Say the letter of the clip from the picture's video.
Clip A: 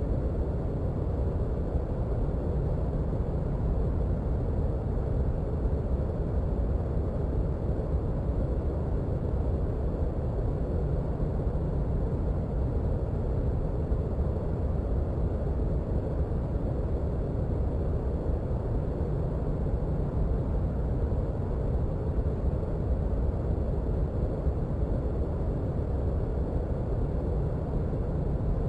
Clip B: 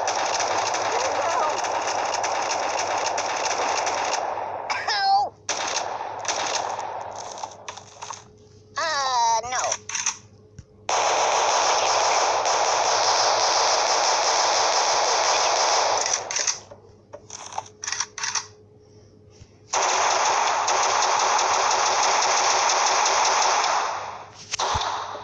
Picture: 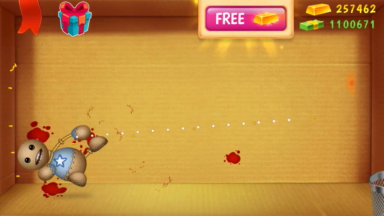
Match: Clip B